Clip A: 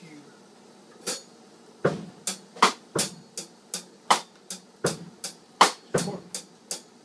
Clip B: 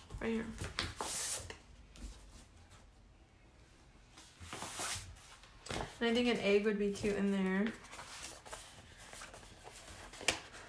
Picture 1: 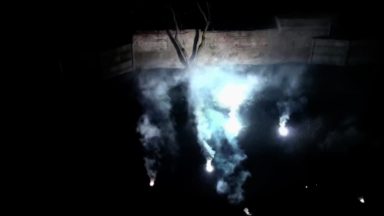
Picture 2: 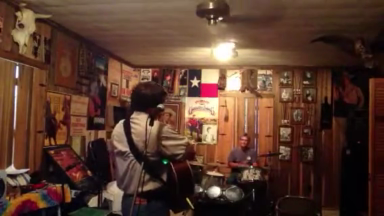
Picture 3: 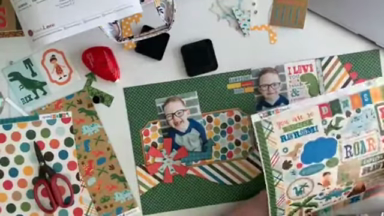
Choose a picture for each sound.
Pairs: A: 2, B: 3